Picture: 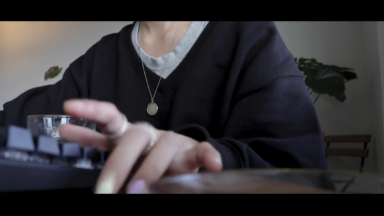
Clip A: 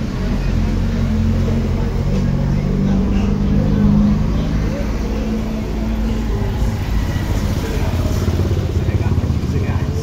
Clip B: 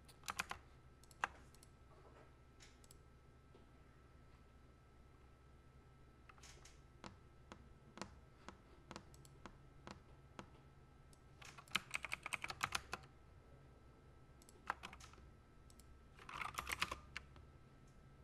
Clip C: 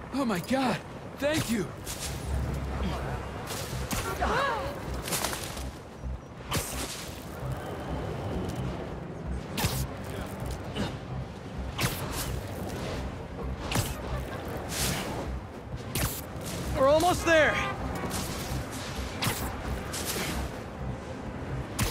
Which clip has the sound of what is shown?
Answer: B